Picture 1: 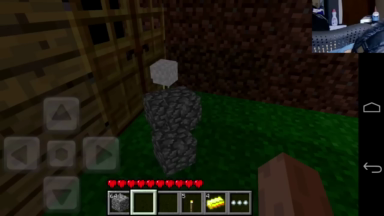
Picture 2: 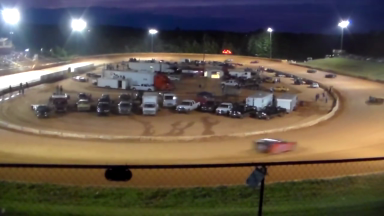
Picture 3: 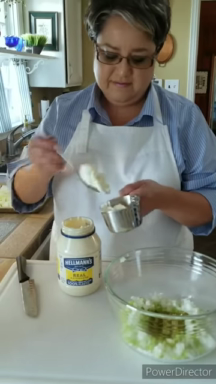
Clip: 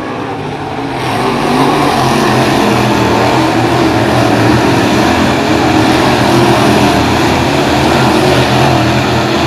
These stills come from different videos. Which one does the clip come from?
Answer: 2